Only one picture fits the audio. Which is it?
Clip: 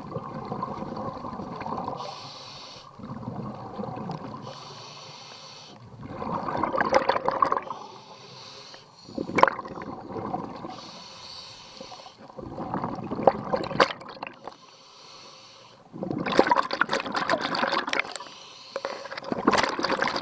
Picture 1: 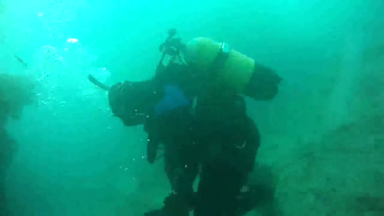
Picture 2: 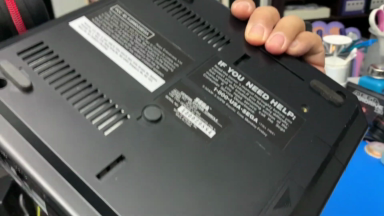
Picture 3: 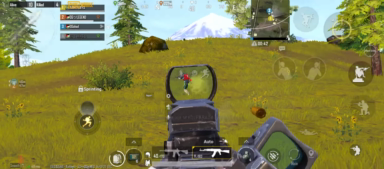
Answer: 1